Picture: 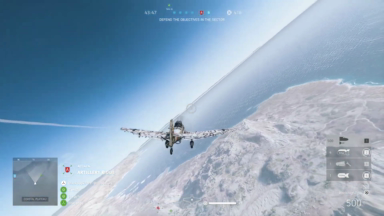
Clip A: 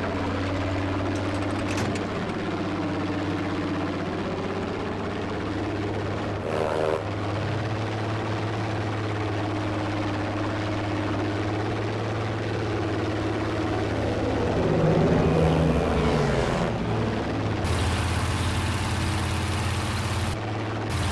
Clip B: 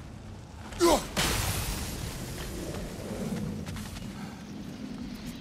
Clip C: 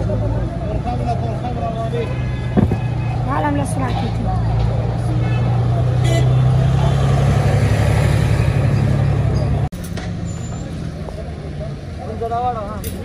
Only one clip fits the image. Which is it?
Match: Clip A